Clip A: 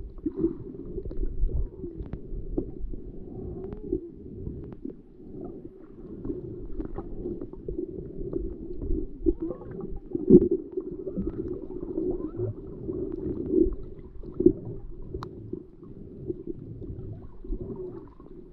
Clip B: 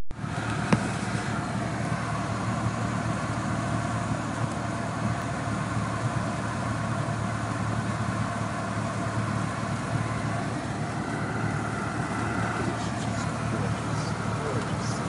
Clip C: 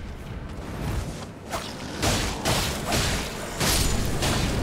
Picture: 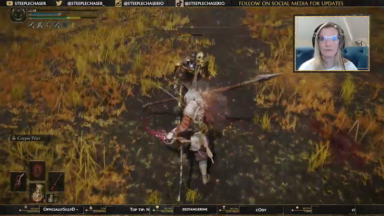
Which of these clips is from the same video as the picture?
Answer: C